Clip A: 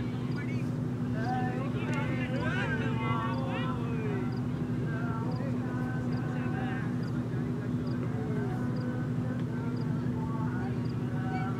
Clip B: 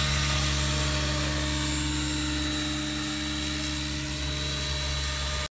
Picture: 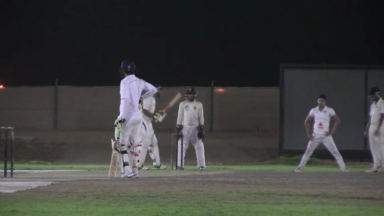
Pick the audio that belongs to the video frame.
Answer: A